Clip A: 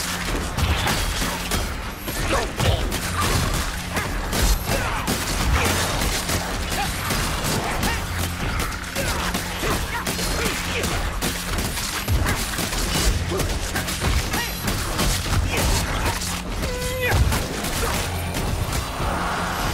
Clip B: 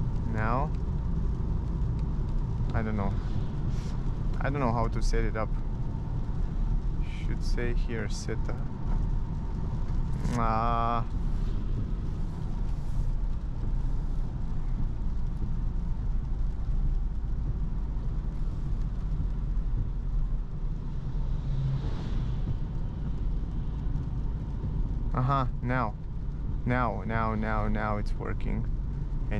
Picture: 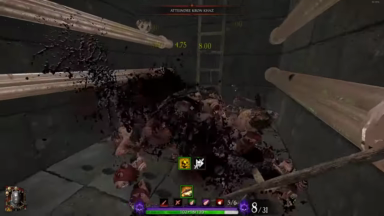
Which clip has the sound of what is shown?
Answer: A